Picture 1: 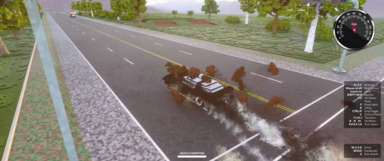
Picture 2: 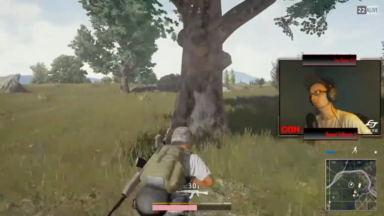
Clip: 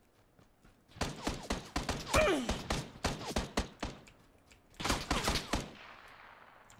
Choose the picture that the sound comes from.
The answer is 2